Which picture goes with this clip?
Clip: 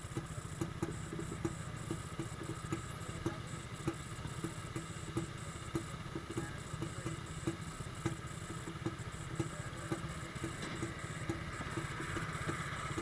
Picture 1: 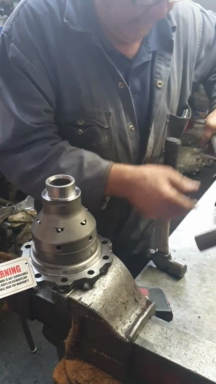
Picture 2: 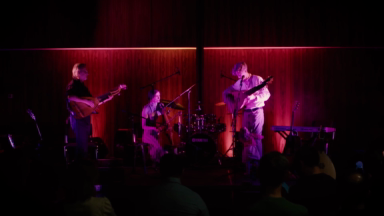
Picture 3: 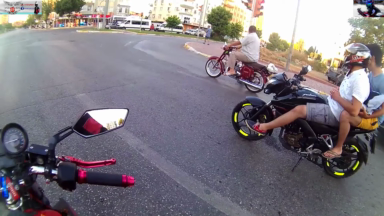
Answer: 3